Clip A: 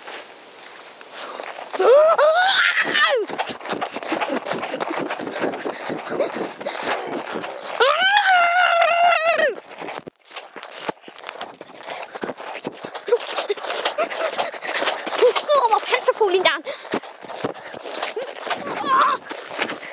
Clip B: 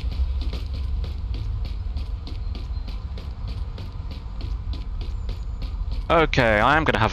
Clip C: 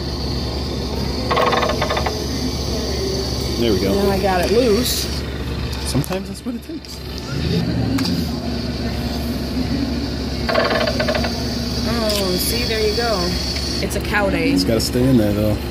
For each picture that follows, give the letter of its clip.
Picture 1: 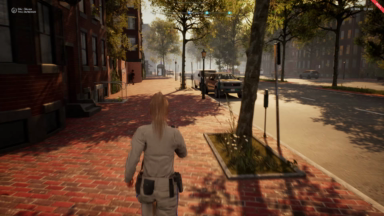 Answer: B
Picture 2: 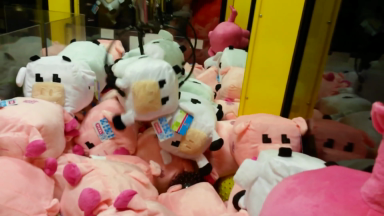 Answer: C